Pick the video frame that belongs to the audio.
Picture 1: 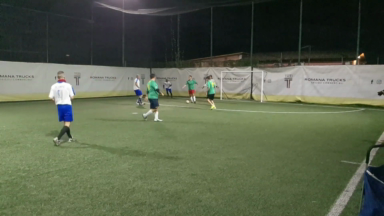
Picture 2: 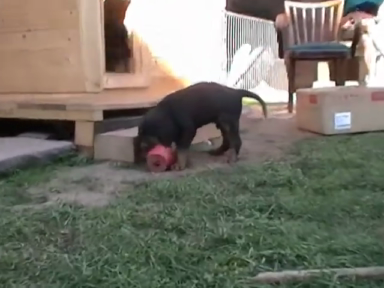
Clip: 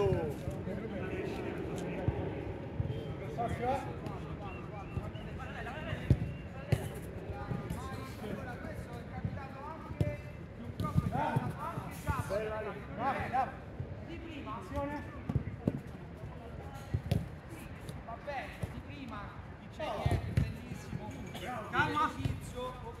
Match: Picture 1